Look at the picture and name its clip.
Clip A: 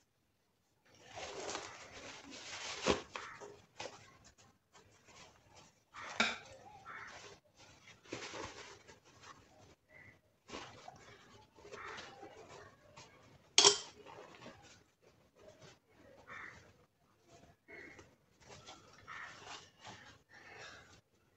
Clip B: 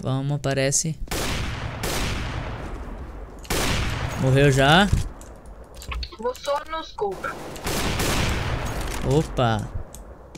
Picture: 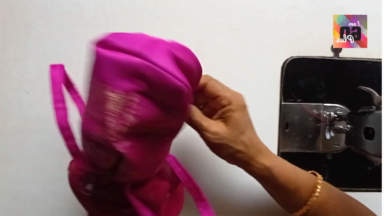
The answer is A